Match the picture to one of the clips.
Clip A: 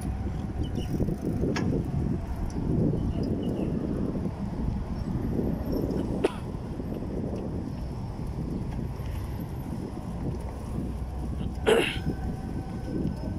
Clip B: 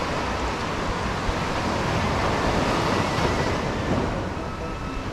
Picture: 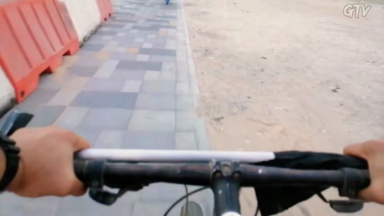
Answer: A